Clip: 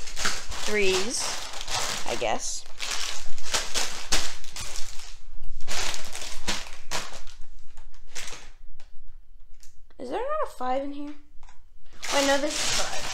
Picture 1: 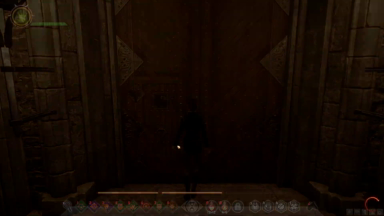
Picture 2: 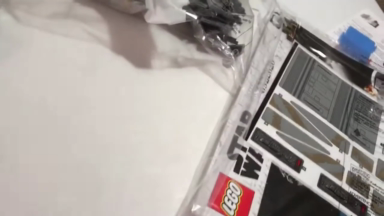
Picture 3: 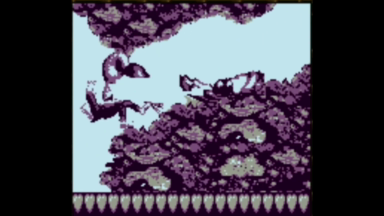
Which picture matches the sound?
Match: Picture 2